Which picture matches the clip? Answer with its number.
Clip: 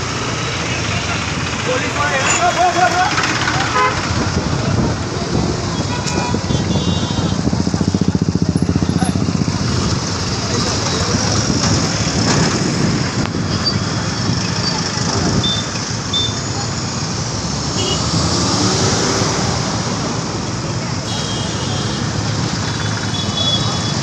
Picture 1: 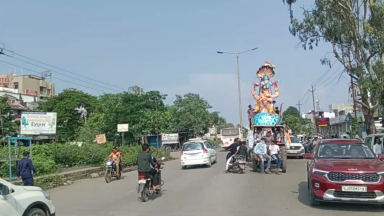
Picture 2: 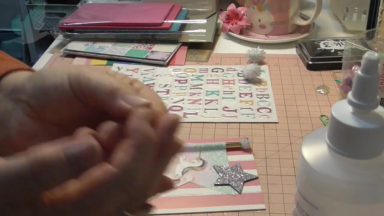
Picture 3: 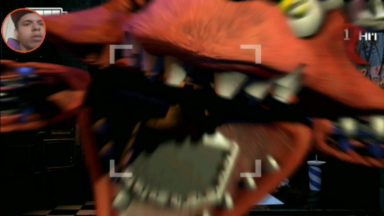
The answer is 1